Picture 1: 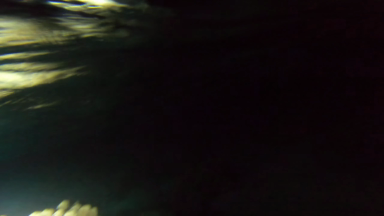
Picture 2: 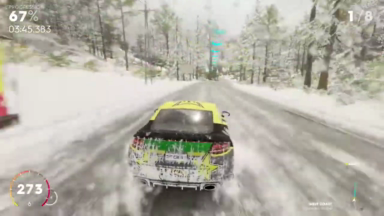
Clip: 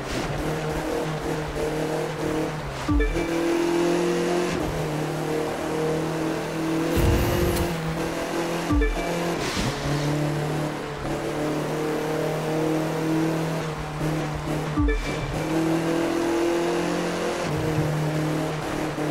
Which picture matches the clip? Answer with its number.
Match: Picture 2